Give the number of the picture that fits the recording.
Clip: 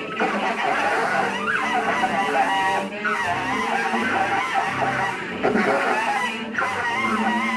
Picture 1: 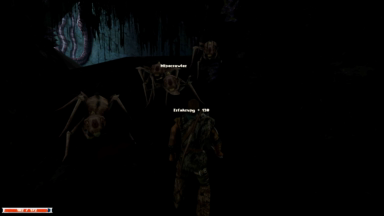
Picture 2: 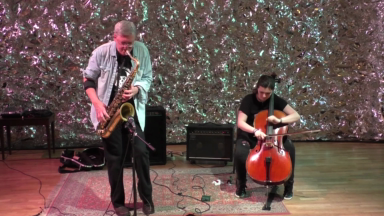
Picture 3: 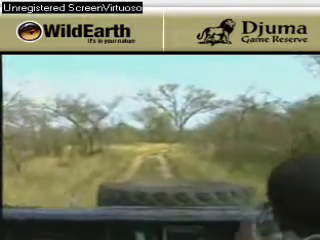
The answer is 2